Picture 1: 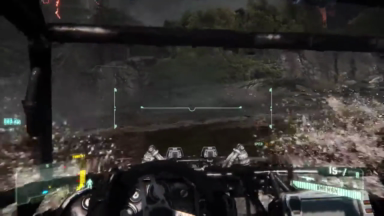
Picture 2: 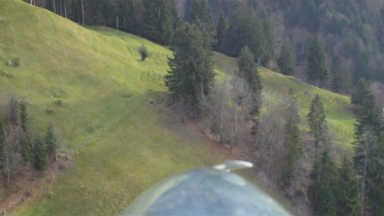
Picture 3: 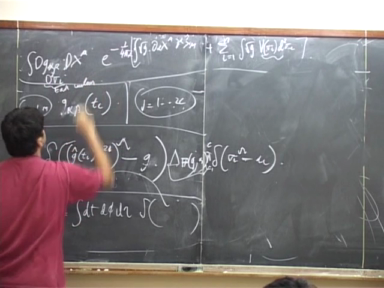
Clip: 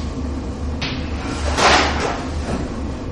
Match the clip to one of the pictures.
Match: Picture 3